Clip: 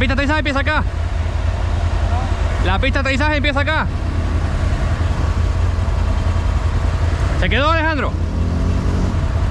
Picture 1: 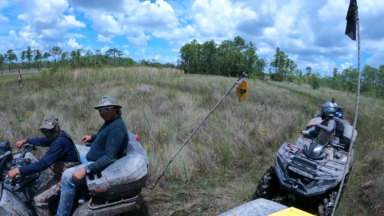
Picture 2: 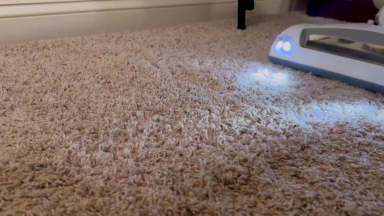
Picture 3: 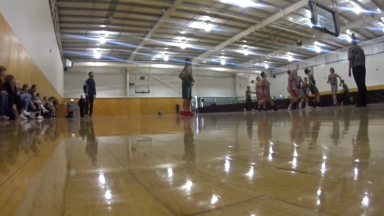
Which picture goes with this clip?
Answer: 1